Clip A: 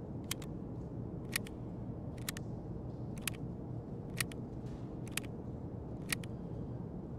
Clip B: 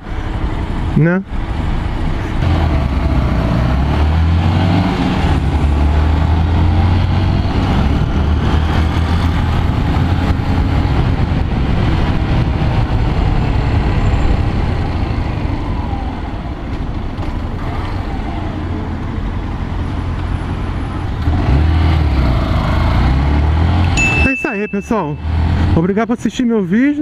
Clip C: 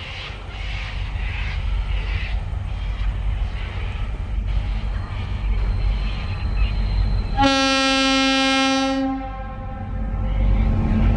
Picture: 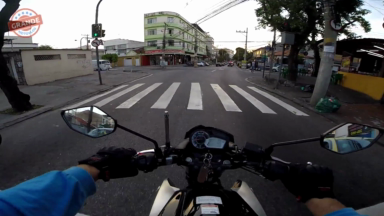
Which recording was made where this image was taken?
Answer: B